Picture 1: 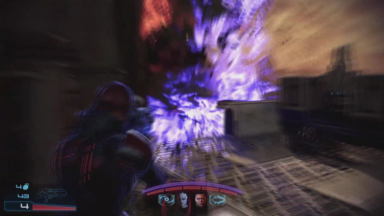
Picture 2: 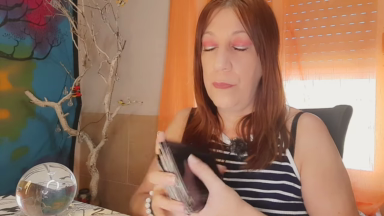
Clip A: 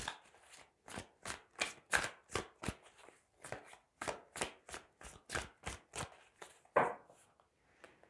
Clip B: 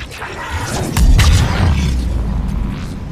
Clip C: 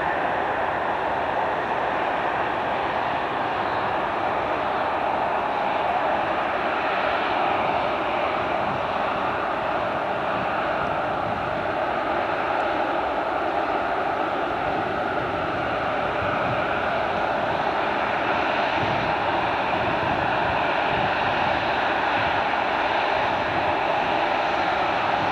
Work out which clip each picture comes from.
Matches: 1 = B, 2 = A